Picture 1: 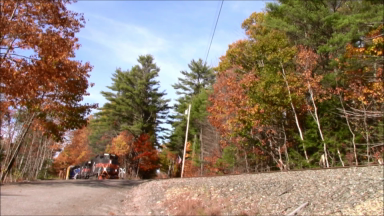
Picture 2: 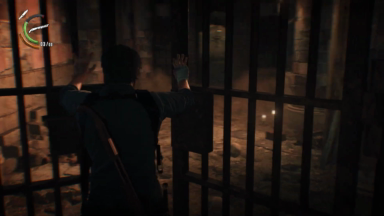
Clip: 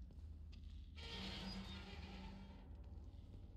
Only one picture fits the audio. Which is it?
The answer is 2